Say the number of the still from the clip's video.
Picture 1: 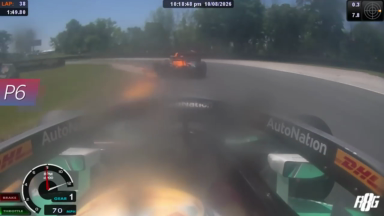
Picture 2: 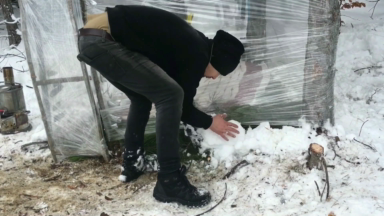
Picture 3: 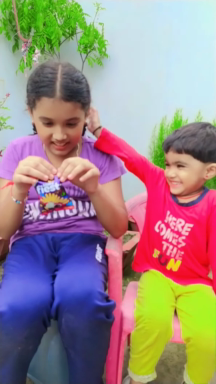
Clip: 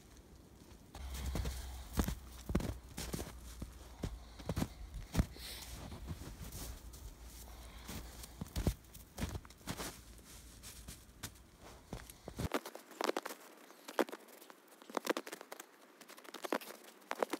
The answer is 2